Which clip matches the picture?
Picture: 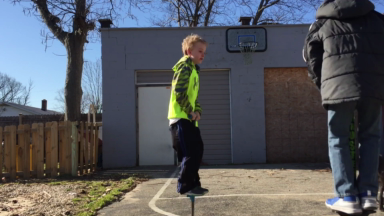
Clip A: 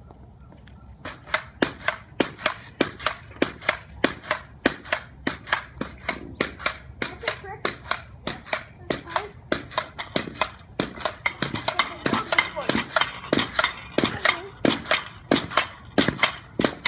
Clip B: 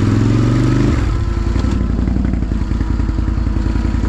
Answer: A